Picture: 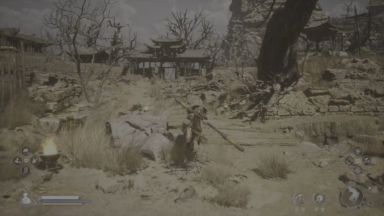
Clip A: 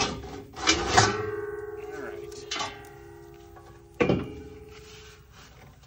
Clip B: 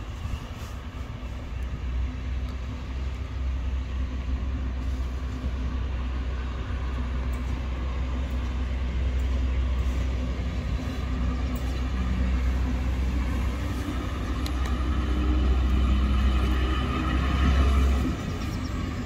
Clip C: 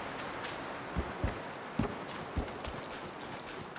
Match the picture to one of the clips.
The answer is C